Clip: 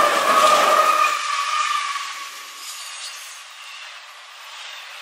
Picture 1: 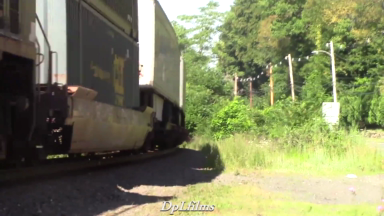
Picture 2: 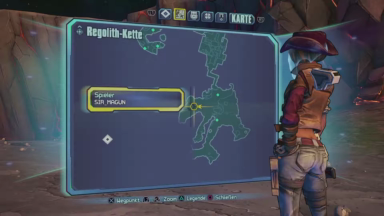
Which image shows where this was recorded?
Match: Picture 1